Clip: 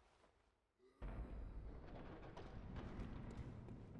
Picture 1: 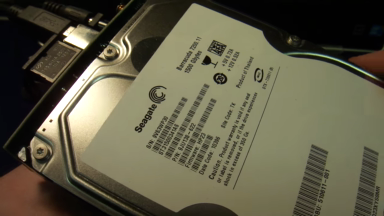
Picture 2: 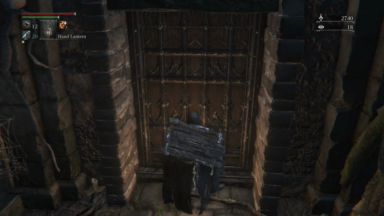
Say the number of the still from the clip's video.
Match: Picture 2